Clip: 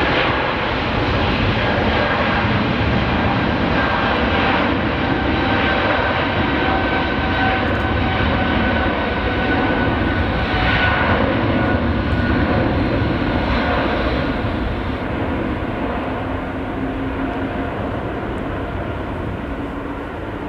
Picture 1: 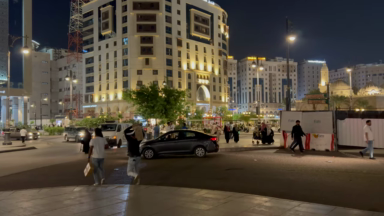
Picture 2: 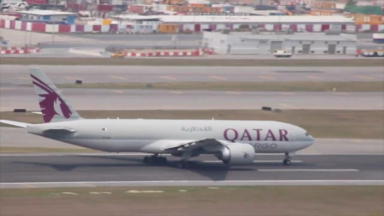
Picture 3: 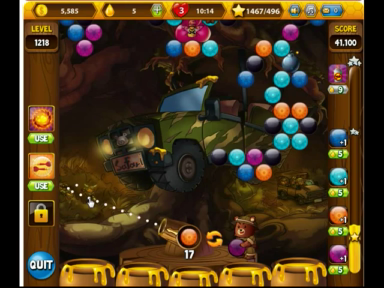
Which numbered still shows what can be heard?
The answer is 2